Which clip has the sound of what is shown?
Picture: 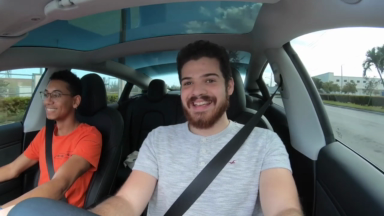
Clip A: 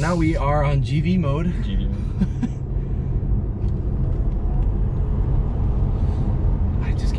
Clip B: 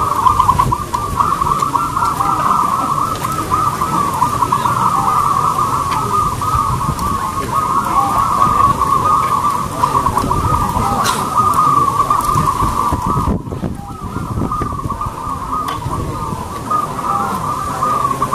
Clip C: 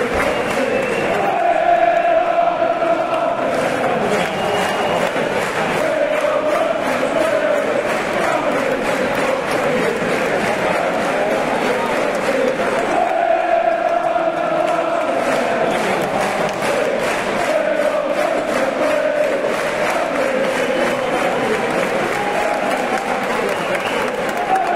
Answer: A